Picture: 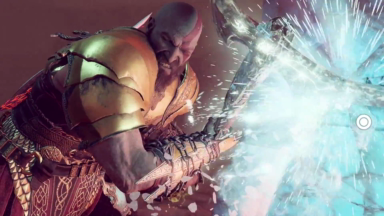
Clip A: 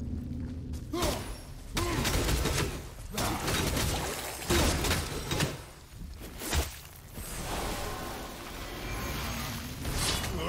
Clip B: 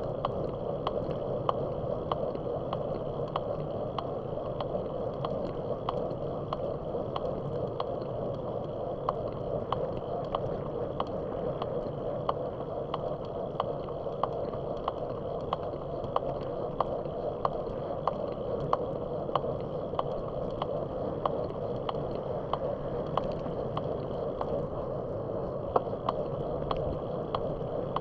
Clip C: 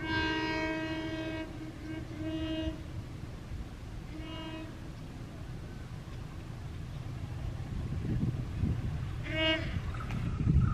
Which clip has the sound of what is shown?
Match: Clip A